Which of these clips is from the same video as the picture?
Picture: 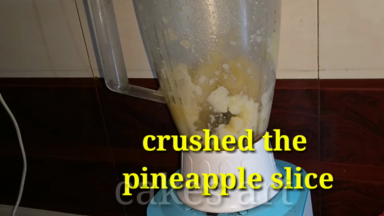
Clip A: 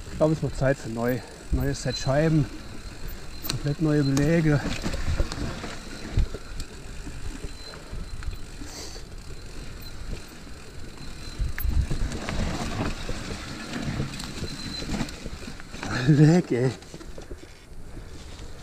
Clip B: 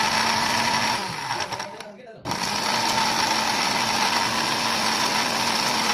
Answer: B